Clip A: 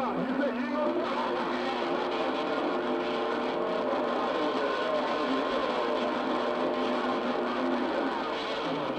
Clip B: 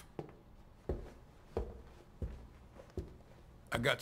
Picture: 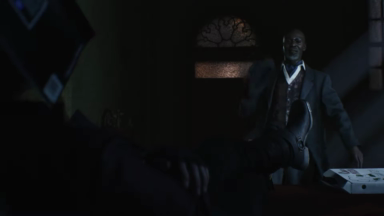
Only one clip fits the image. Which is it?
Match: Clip B